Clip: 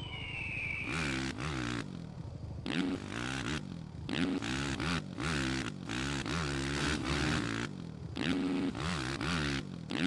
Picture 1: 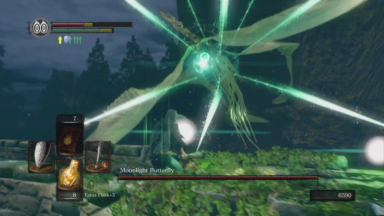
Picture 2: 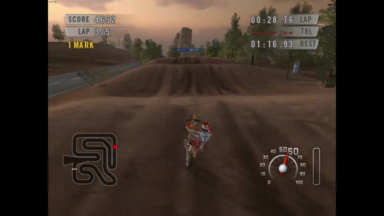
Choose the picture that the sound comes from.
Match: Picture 2